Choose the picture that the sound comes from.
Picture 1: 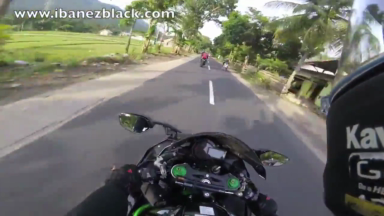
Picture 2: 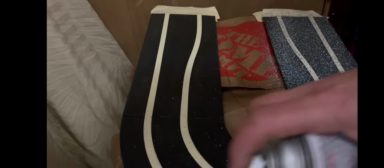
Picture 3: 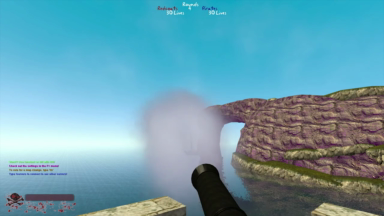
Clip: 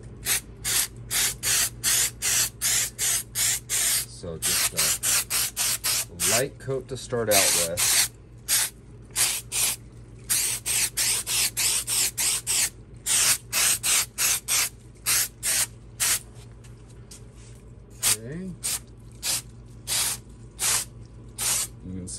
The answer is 2